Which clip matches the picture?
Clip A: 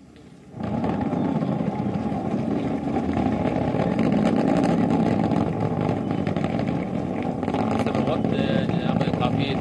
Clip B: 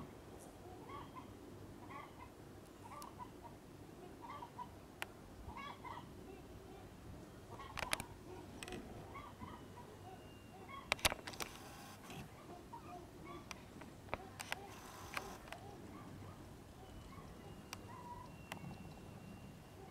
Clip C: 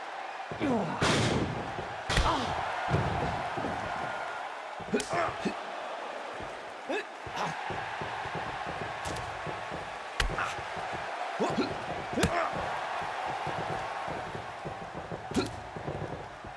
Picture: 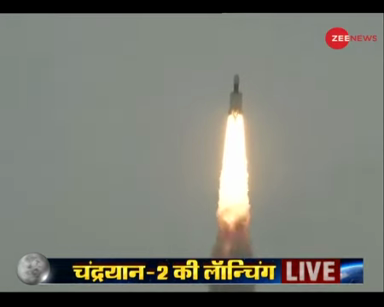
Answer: A